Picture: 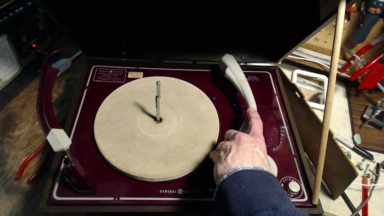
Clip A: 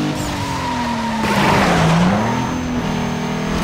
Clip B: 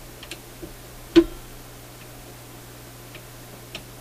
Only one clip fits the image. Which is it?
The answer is B